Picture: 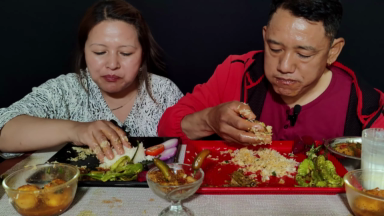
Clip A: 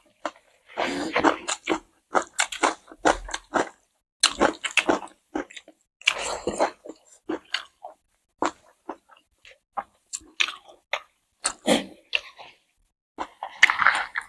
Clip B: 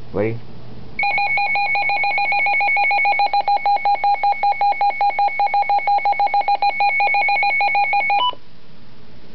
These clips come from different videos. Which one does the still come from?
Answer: A